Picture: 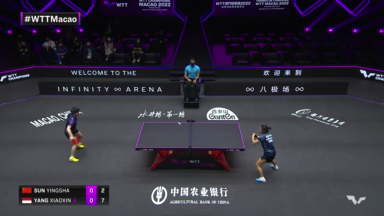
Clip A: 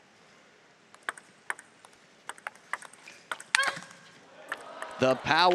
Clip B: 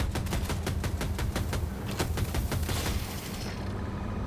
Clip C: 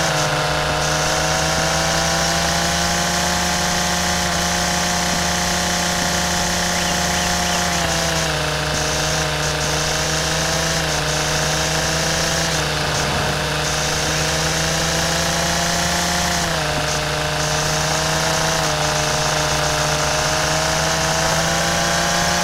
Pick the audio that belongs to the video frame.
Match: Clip A